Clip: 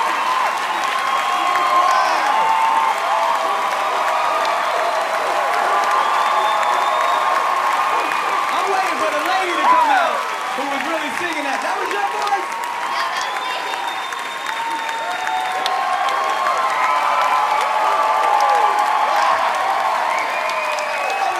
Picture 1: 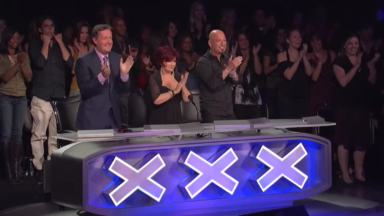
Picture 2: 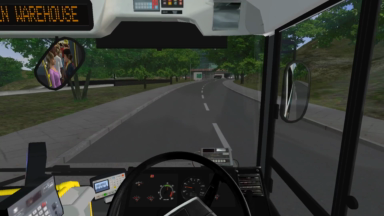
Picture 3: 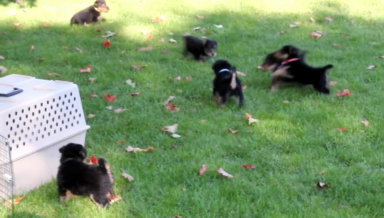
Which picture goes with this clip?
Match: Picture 1